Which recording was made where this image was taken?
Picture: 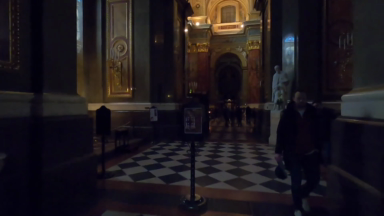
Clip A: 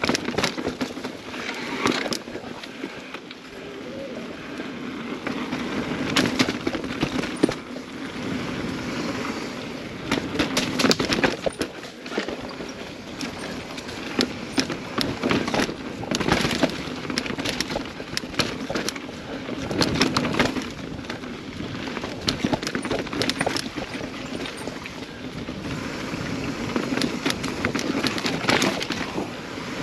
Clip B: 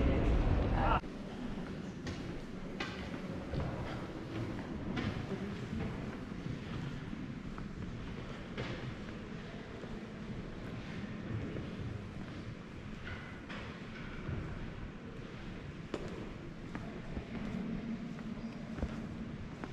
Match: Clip B